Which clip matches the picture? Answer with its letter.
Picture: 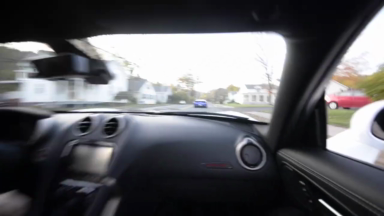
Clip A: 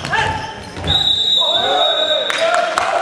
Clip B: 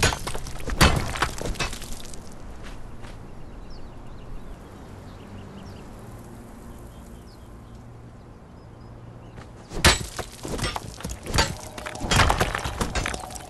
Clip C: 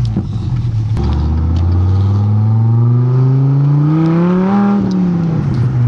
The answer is C